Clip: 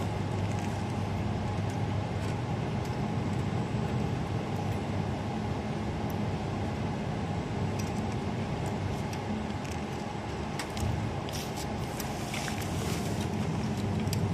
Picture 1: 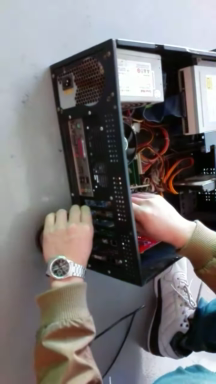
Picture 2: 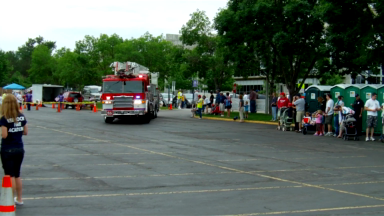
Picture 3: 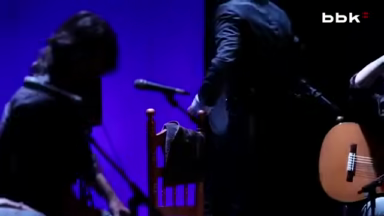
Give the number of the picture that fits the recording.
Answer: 1